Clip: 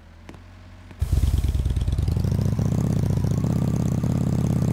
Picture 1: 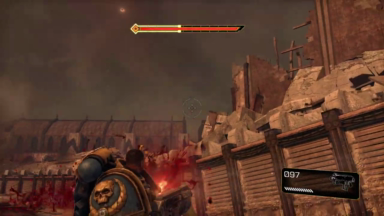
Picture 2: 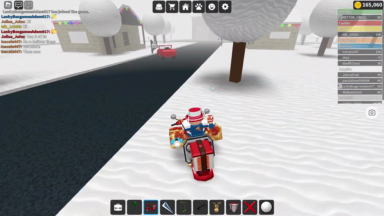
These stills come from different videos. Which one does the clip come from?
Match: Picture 2